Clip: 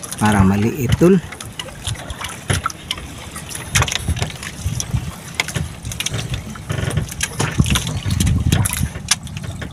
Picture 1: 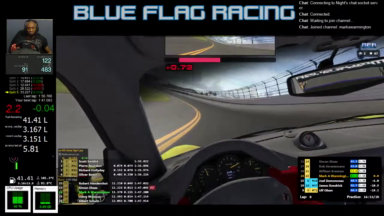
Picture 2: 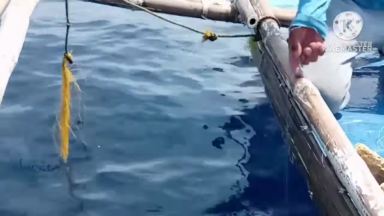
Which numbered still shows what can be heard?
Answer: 2